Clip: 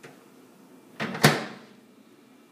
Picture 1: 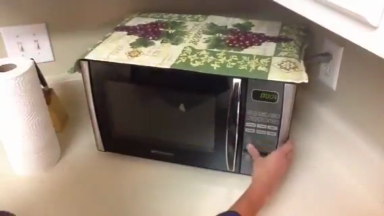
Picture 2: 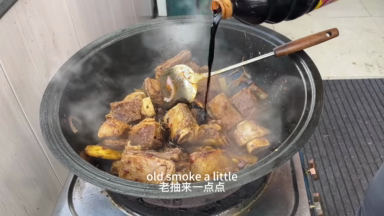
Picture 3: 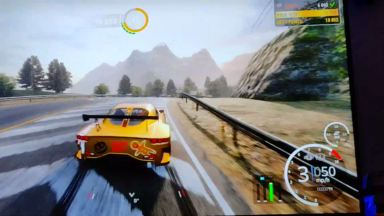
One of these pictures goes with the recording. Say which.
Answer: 1